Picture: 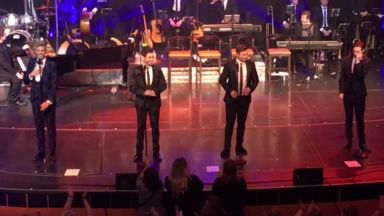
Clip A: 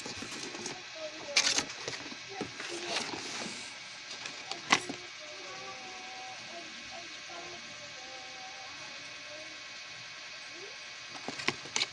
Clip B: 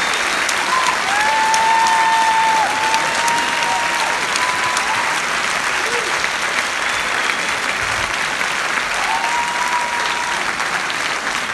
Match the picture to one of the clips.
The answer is B